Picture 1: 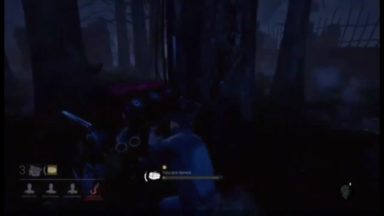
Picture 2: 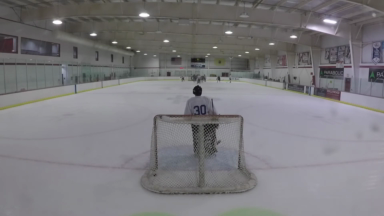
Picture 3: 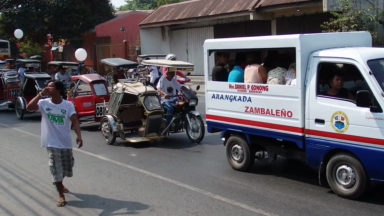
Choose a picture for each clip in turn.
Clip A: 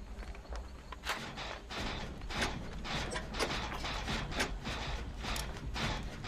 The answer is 1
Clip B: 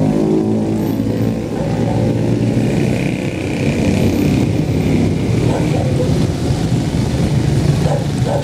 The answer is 3